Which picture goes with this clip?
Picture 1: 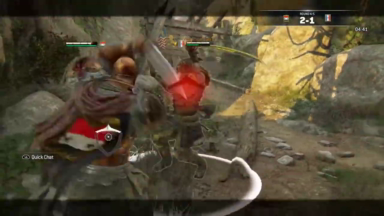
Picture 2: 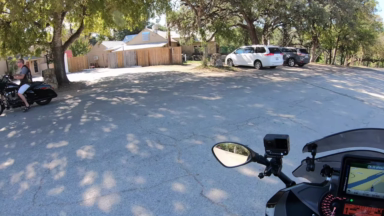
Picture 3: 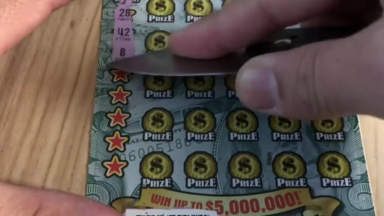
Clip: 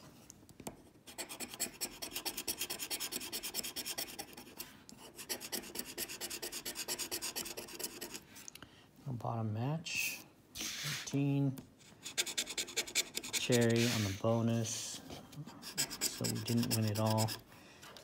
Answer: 3